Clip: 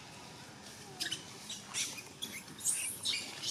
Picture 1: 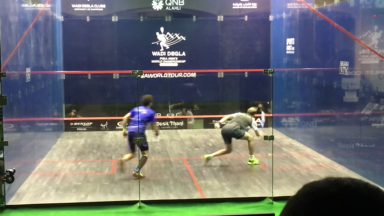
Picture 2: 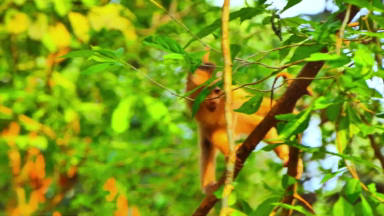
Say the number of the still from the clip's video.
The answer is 2